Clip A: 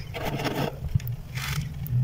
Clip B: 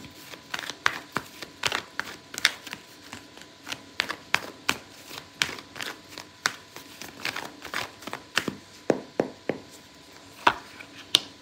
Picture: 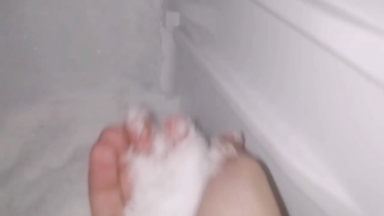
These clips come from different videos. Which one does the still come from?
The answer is A